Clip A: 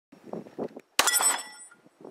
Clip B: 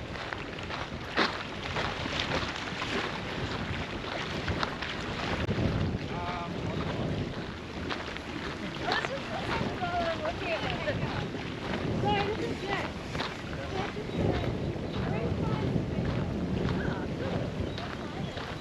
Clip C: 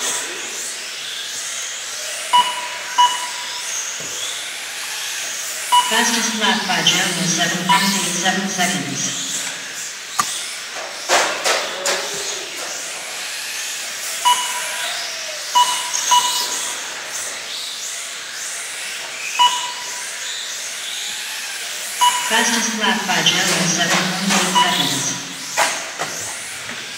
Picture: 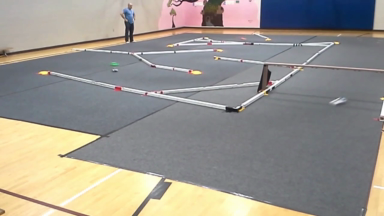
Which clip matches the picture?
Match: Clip C